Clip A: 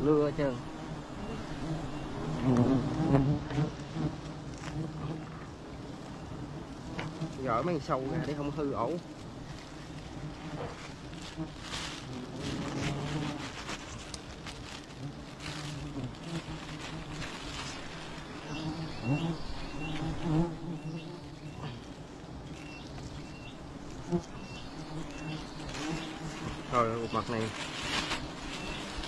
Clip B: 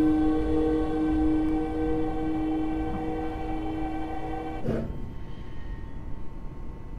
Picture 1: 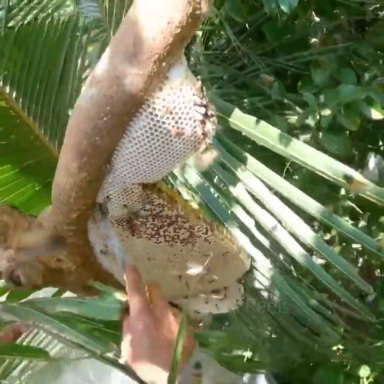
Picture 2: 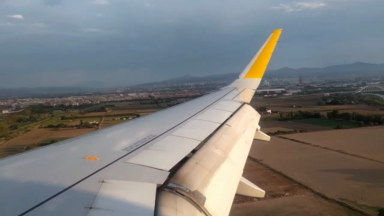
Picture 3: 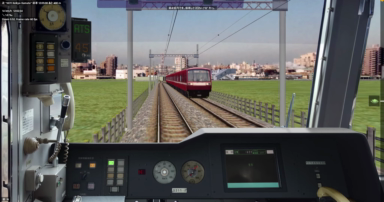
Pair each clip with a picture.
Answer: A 1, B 3